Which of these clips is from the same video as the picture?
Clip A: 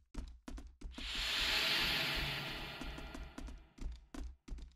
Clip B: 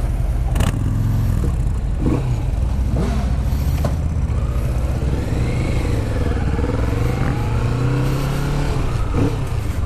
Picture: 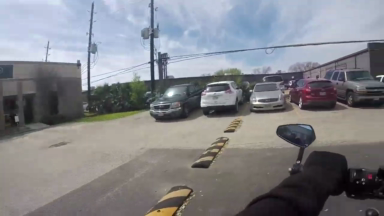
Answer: B